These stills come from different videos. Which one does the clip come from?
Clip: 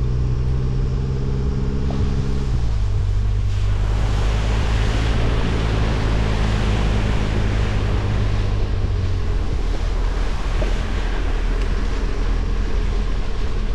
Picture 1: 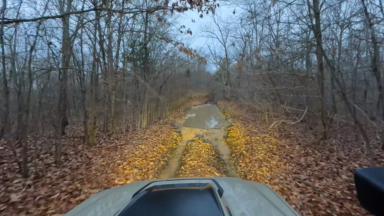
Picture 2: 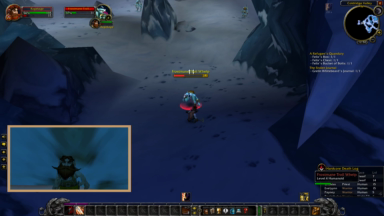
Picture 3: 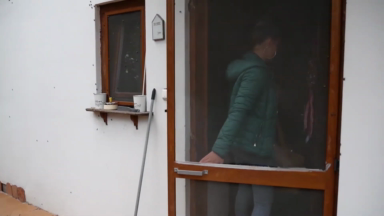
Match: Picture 1